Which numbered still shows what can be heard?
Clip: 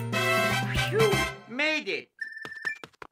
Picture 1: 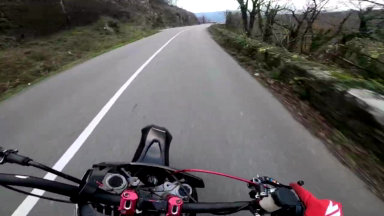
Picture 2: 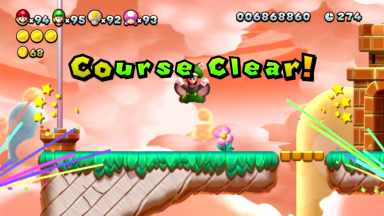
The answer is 2